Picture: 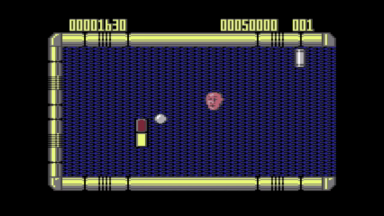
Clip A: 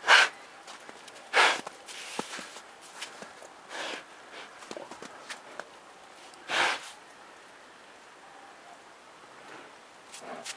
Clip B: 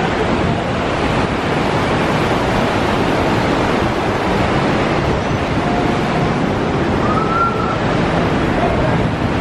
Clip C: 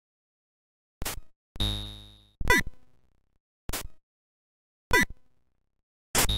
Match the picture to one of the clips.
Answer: C